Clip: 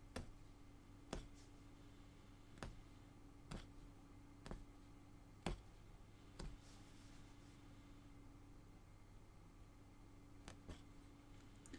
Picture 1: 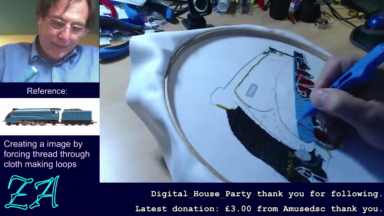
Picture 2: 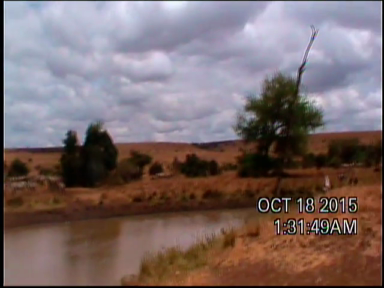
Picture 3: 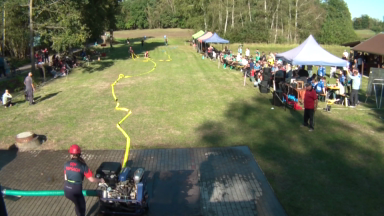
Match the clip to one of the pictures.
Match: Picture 1